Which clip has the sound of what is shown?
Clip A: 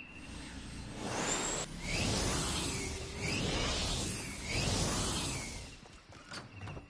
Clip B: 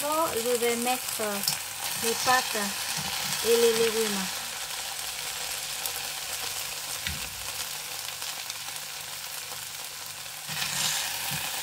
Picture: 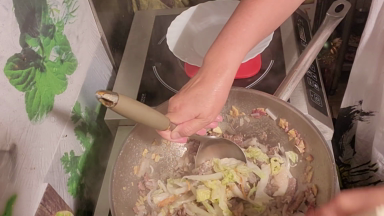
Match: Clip B